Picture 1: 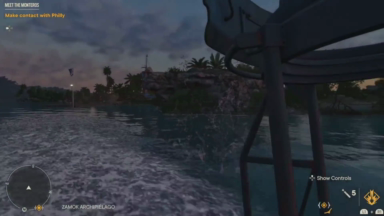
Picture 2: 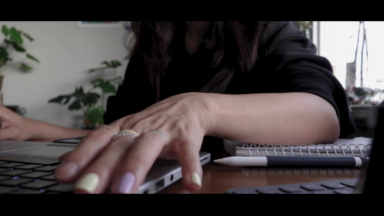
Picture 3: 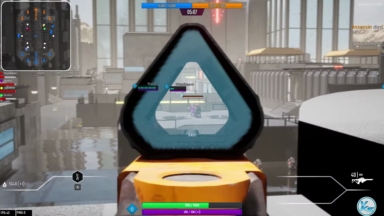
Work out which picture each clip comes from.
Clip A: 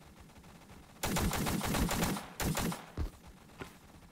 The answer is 3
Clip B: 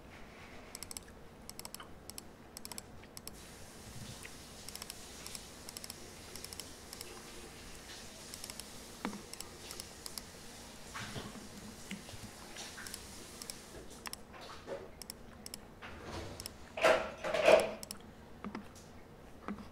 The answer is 2